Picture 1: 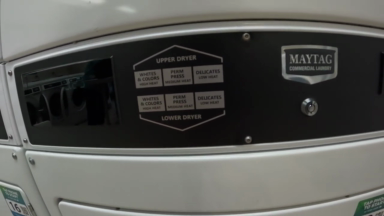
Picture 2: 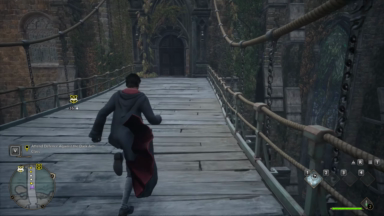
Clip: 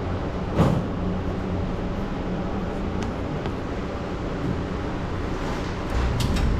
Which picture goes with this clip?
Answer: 1